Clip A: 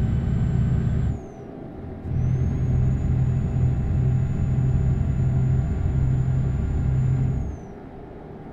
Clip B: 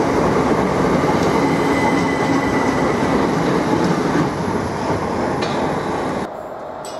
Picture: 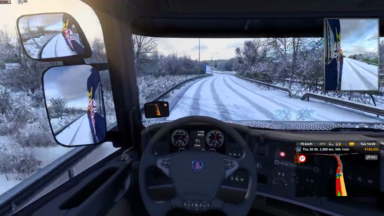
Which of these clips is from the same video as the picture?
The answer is A